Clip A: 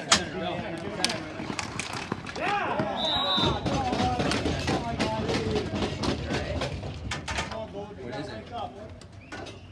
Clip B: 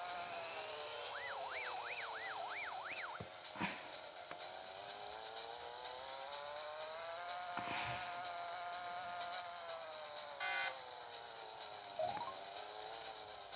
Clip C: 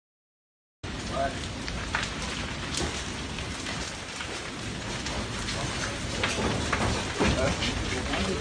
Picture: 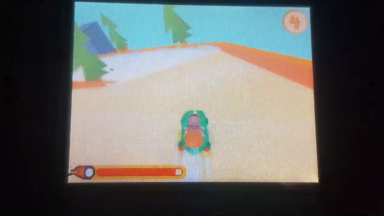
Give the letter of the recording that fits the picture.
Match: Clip B